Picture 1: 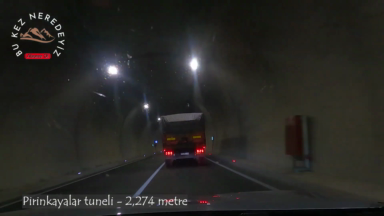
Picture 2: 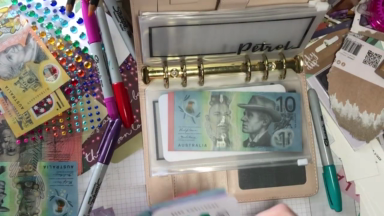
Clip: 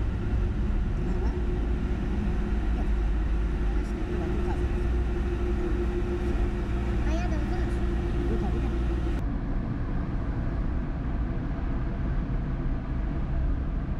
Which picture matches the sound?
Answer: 1